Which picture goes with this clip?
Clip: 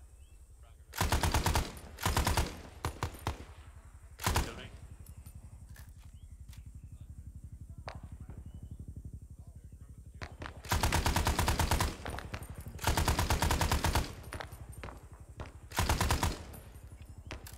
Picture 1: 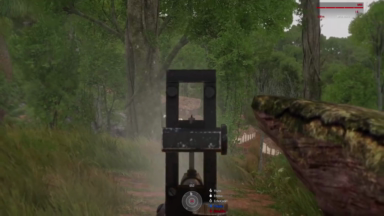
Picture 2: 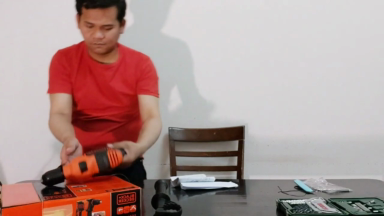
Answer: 1